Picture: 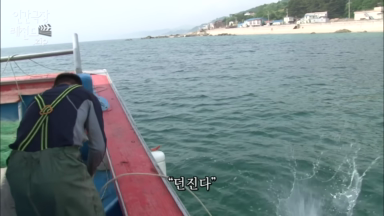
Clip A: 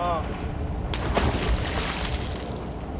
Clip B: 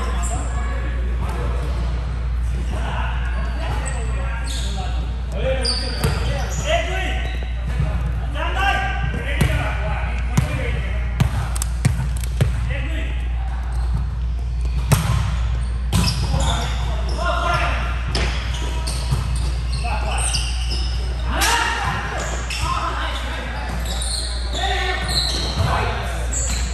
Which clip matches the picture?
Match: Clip A